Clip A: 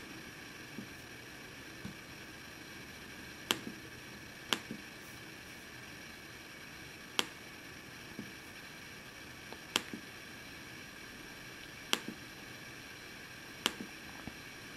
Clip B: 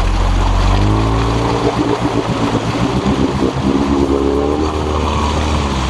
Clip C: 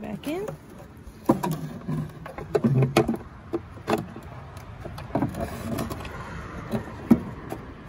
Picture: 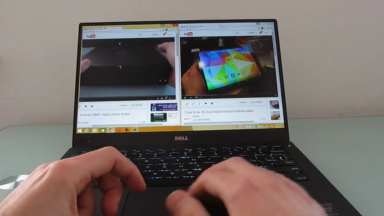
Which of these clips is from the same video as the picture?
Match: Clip A